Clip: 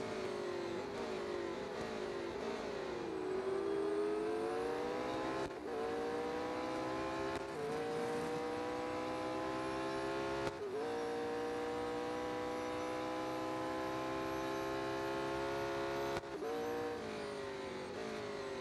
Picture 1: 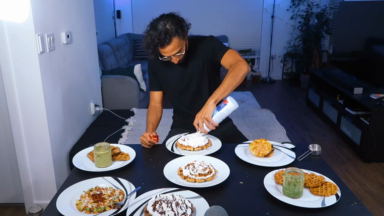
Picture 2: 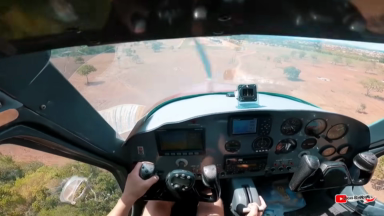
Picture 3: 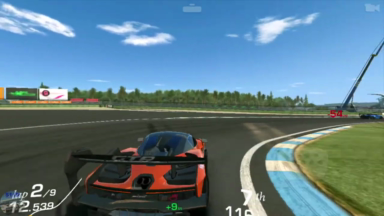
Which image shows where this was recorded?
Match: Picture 3